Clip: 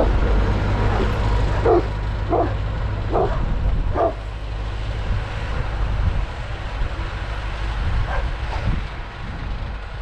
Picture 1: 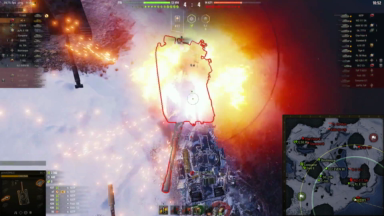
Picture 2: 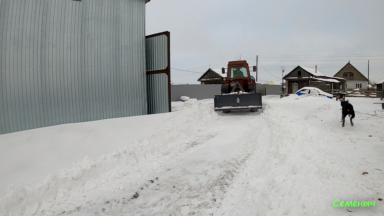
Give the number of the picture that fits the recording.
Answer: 2